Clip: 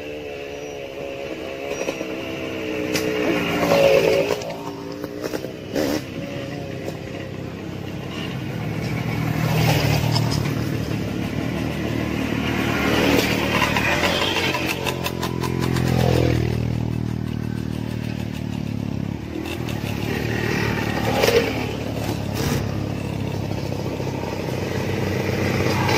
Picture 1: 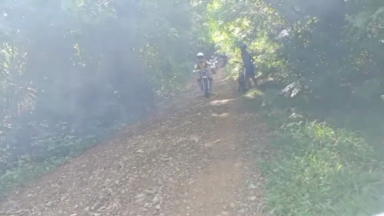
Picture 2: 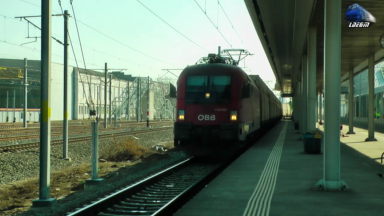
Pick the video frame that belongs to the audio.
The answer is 1